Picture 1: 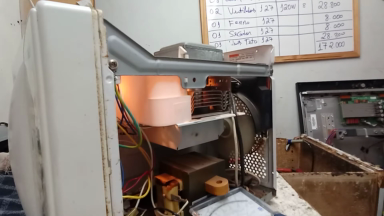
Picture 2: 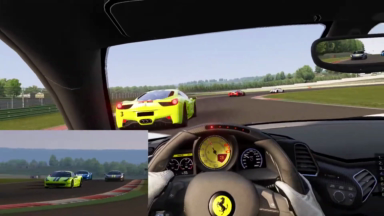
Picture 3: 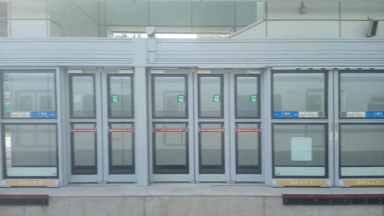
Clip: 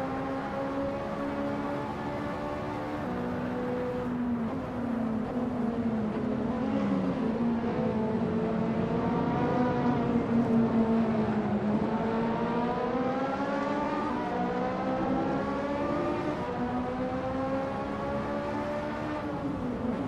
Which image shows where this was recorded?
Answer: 2